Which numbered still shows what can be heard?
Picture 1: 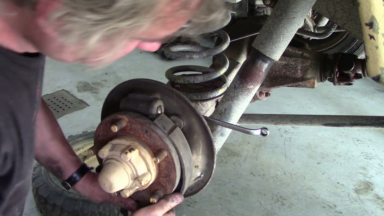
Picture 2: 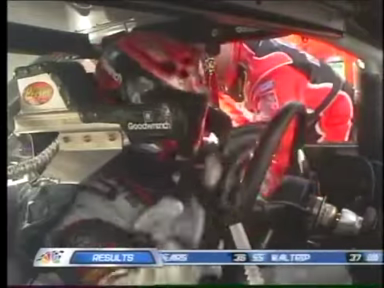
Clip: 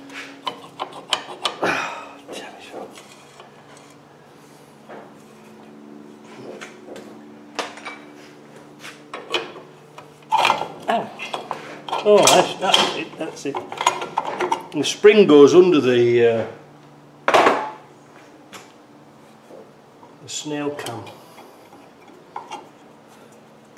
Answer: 1